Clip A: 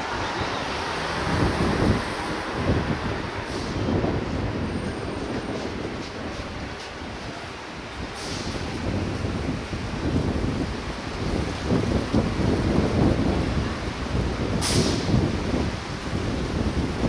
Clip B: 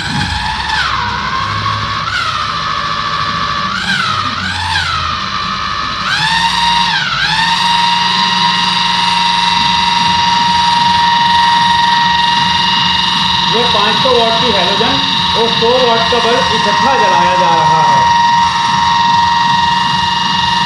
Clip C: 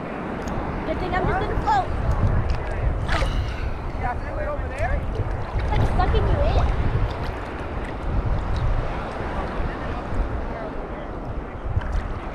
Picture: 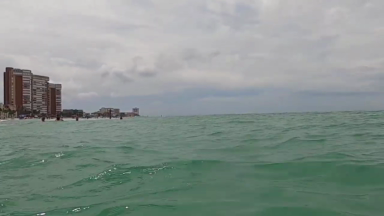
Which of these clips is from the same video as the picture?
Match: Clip C